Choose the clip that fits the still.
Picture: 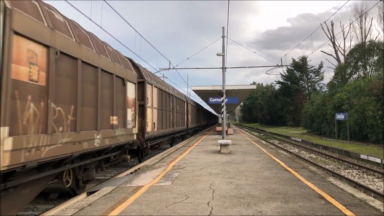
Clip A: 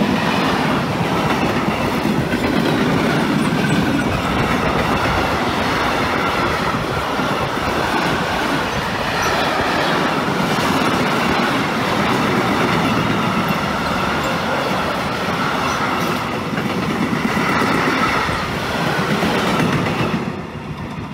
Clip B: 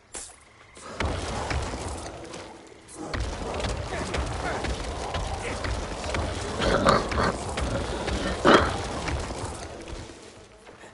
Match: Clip A